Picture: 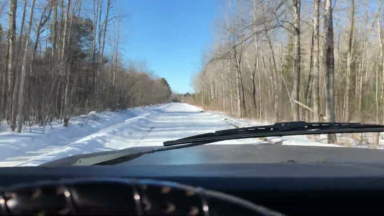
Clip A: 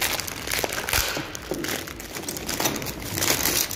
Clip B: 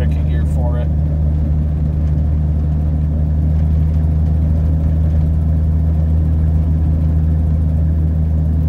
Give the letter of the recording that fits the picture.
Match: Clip B